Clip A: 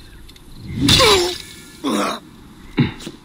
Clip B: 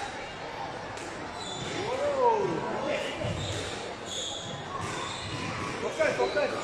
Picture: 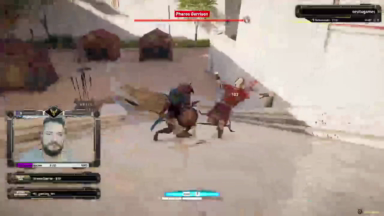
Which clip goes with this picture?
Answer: A